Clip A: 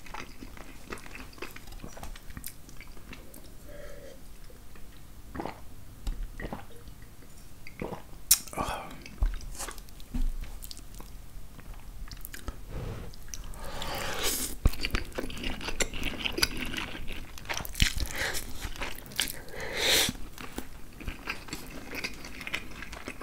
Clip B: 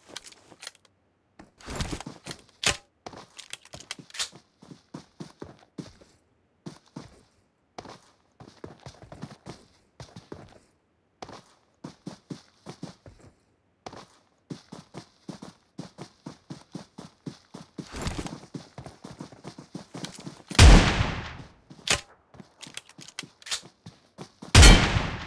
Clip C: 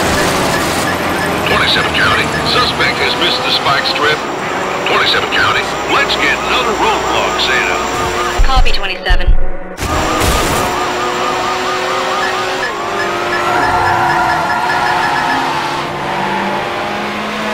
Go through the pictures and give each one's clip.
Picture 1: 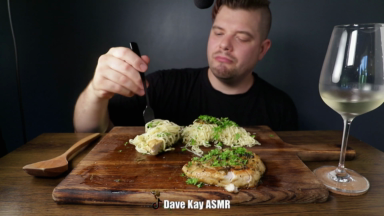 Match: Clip A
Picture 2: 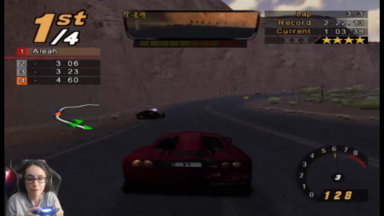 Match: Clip C